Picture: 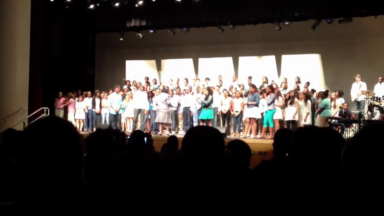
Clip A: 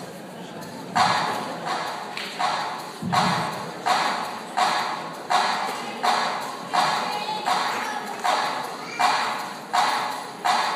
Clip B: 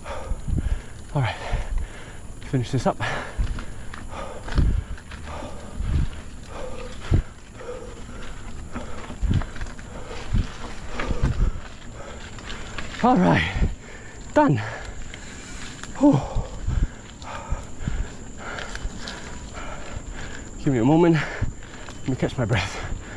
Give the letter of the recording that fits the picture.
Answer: A